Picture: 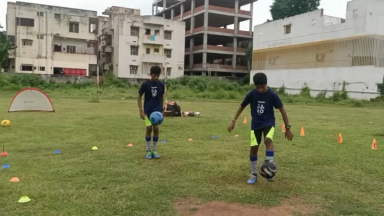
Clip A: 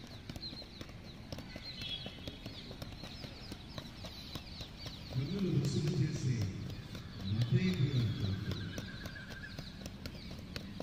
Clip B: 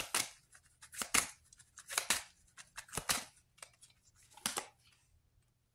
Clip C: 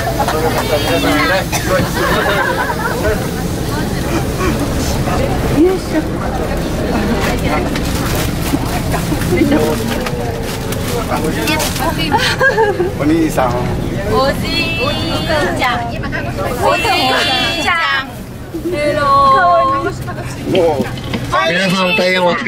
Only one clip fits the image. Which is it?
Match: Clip A